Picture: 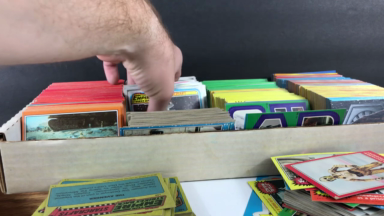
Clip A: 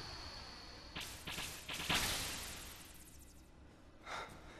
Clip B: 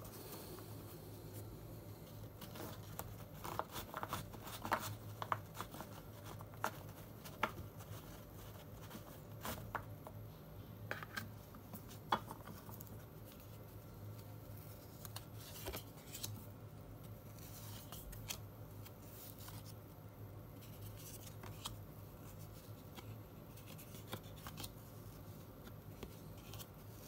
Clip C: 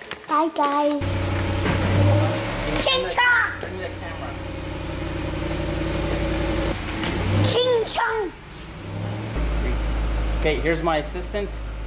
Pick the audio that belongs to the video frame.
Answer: B